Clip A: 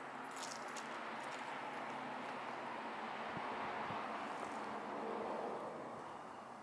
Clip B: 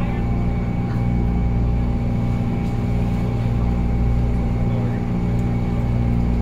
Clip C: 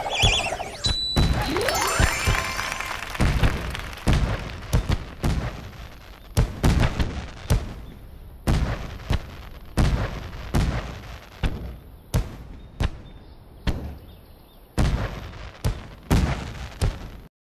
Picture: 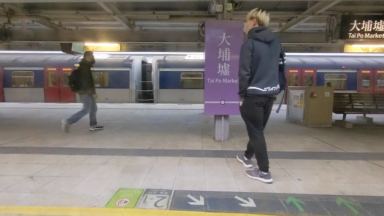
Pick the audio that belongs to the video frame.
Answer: B